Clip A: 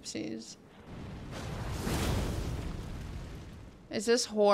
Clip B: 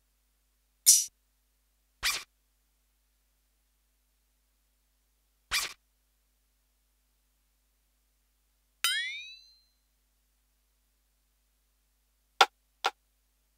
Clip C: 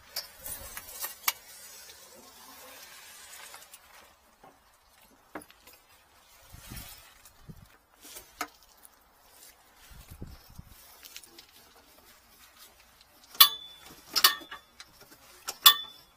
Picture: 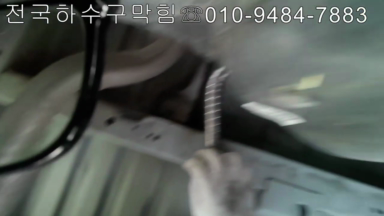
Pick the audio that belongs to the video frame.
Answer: C